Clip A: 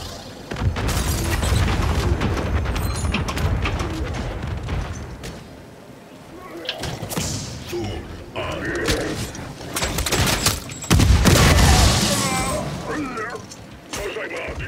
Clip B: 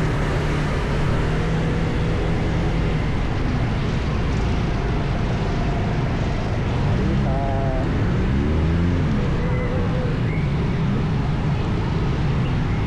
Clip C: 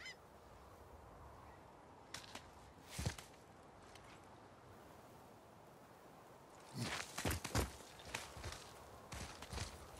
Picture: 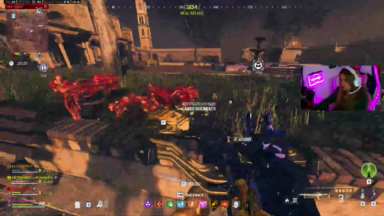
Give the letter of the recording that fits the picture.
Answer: A